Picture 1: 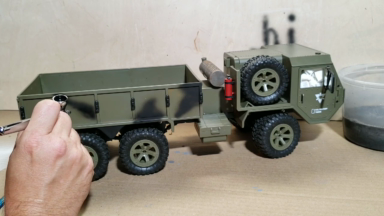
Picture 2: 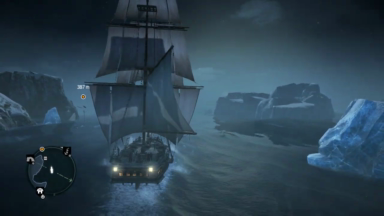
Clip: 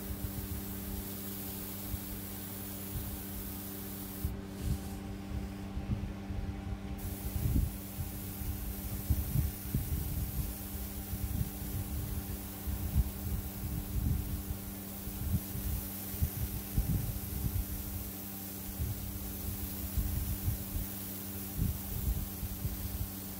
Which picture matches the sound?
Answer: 1